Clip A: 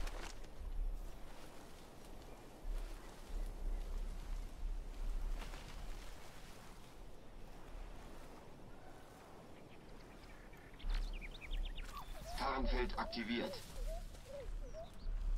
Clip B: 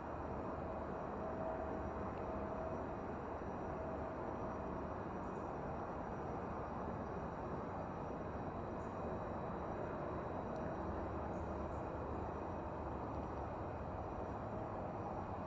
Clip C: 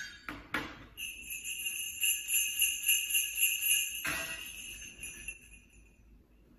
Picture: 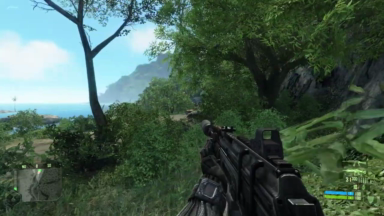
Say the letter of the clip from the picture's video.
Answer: A